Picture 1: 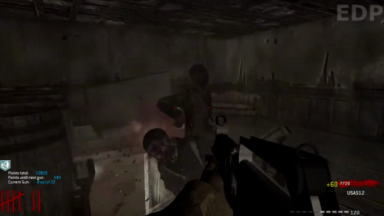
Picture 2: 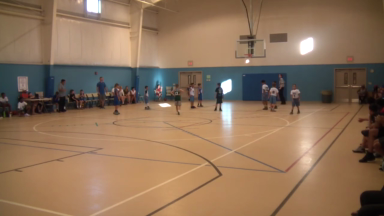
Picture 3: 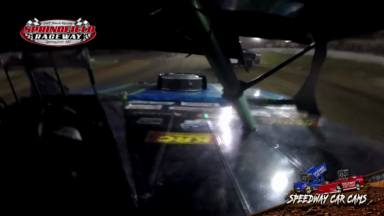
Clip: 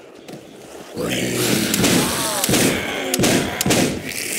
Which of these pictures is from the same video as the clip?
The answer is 1